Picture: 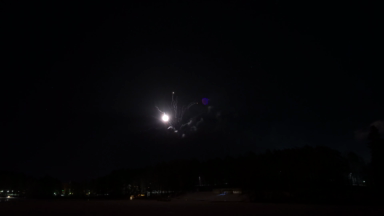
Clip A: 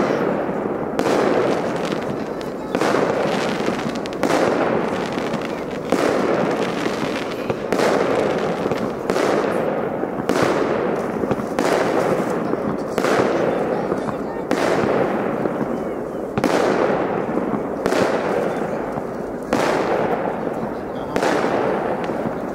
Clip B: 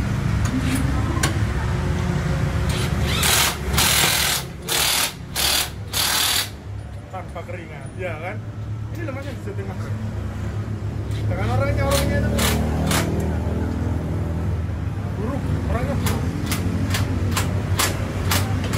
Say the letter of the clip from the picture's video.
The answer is A